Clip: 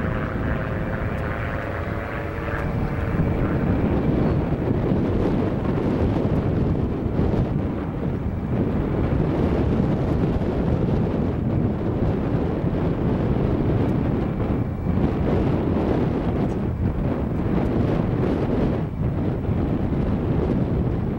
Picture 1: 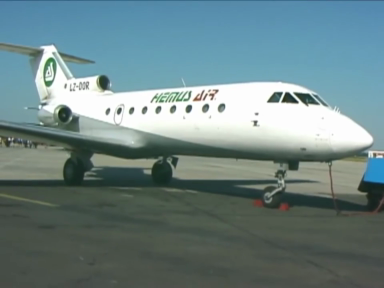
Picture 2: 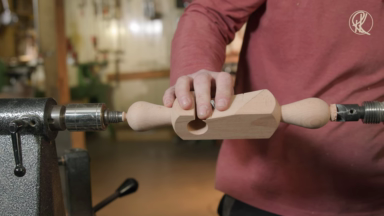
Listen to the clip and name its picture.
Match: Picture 1